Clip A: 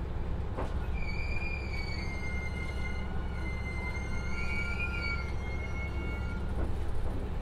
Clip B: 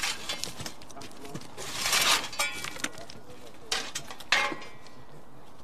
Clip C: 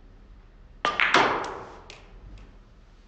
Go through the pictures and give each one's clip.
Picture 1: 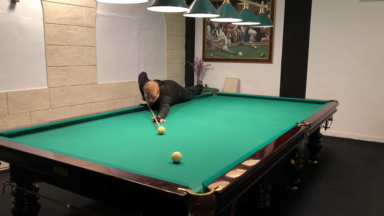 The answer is C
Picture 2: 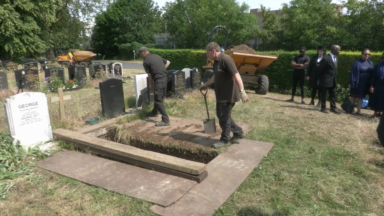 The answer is B